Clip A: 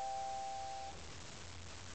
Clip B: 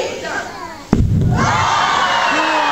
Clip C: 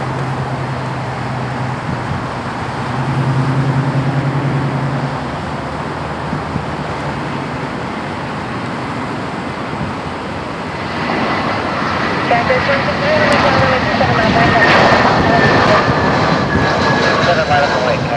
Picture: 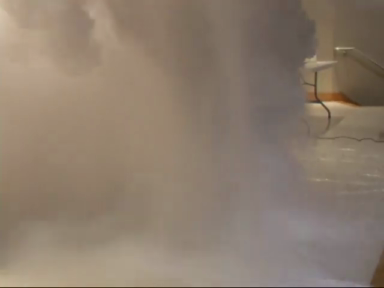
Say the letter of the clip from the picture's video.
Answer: B